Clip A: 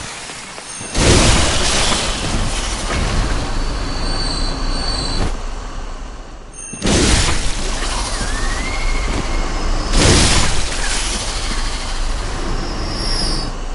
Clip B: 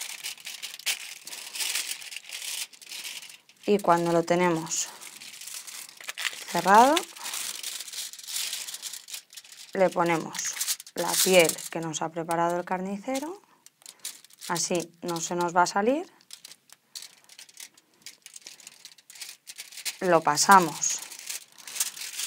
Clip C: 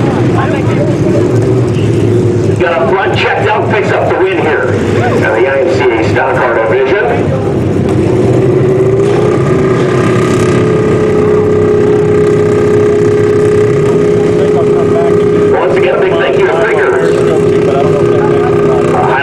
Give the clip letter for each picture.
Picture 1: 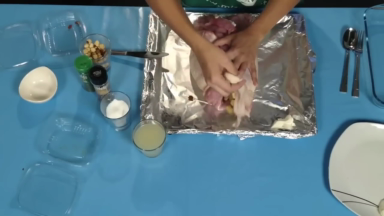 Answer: B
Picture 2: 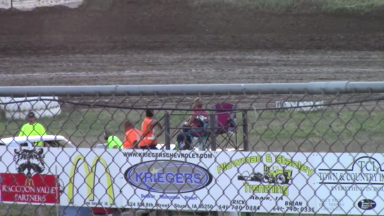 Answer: C